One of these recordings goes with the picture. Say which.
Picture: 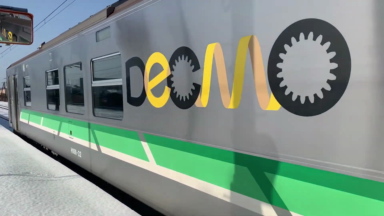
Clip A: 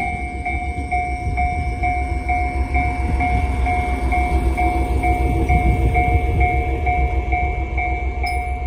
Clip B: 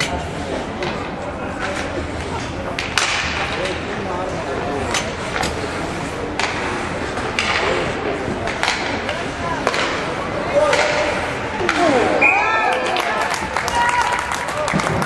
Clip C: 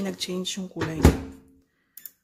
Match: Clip A